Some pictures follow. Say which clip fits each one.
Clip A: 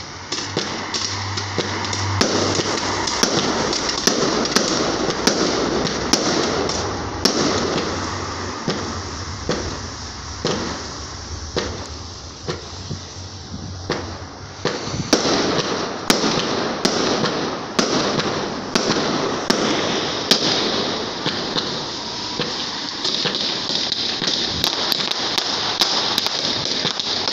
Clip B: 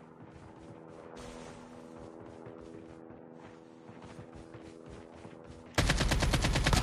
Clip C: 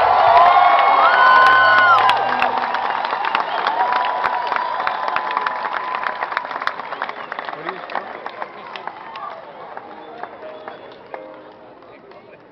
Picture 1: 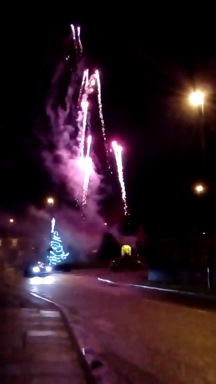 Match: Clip A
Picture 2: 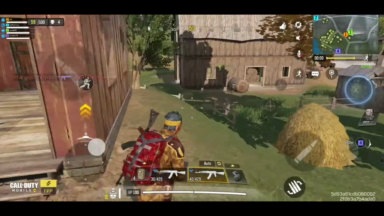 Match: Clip B